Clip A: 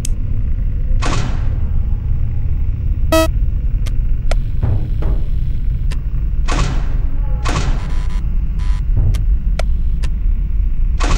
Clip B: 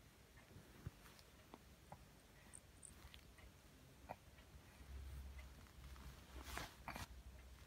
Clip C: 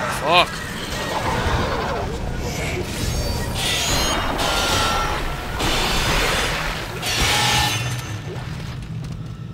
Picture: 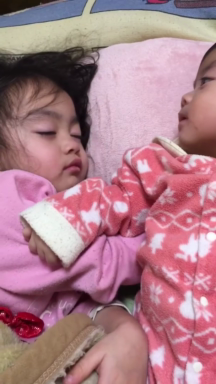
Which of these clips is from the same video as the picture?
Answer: B